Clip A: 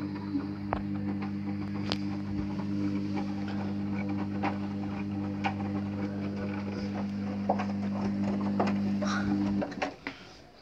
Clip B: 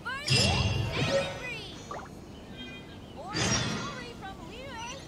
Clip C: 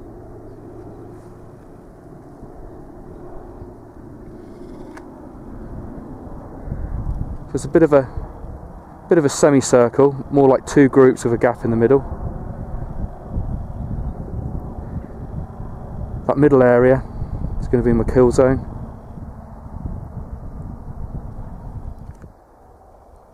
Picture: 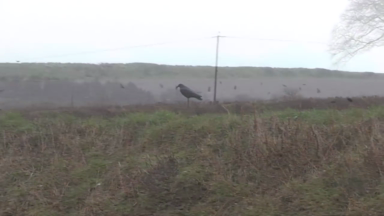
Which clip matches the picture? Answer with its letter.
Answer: C